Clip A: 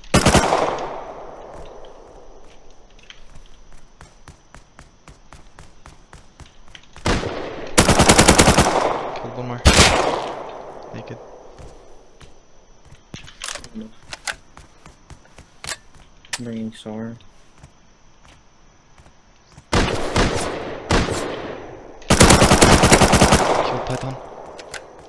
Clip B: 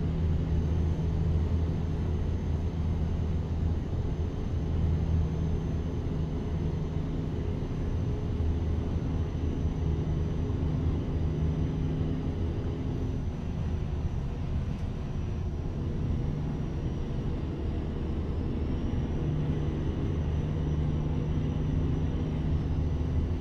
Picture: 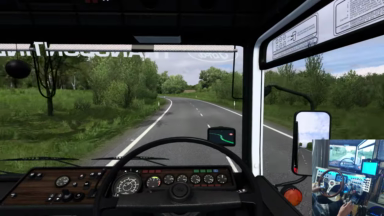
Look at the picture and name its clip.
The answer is B